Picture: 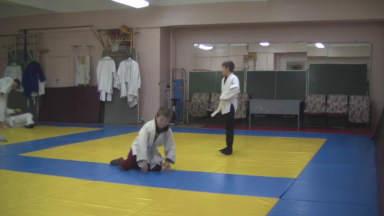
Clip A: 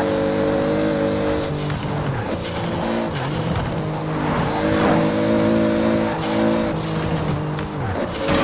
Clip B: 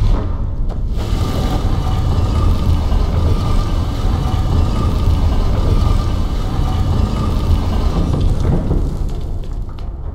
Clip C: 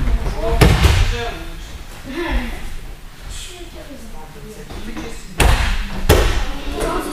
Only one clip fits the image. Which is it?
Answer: C